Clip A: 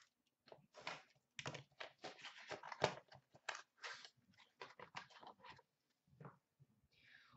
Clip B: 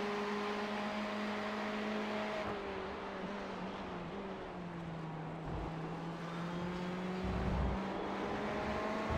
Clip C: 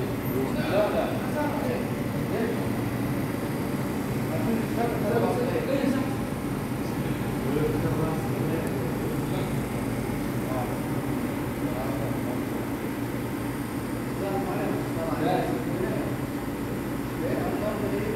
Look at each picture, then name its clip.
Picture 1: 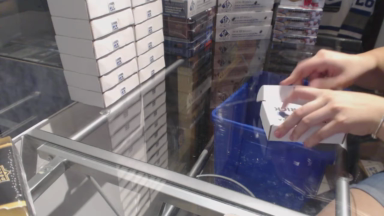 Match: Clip A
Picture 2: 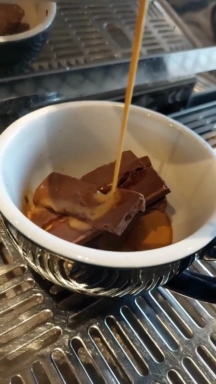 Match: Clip C